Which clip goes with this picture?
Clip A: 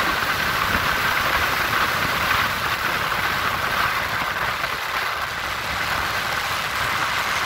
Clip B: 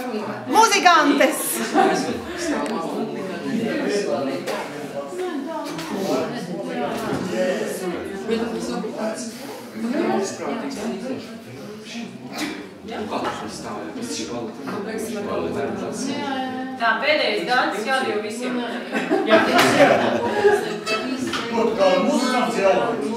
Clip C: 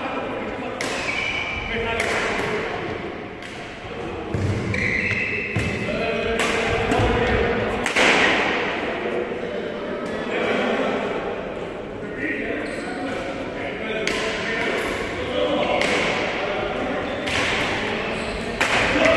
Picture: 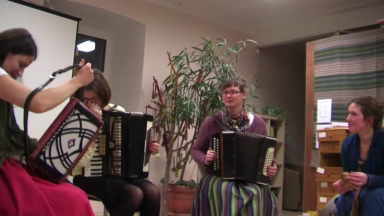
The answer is B